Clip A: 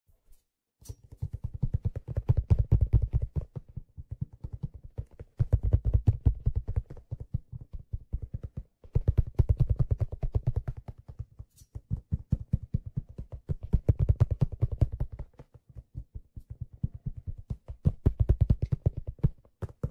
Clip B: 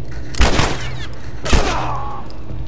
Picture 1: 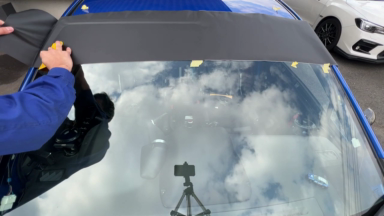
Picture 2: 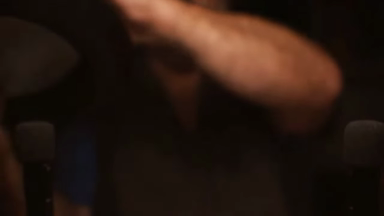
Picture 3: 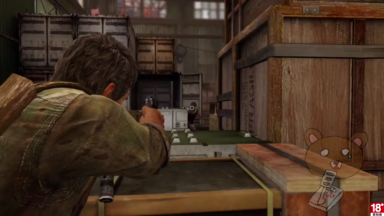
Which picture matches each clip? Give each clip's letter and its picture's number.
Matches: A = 2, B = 3